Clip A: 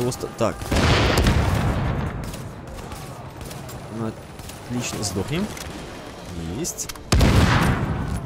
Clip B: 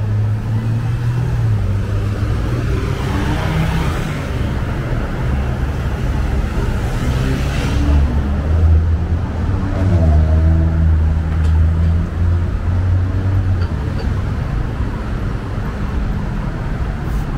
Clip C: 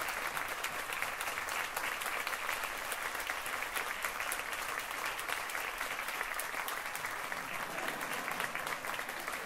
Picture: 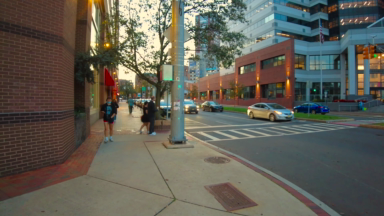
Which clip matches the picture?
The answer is B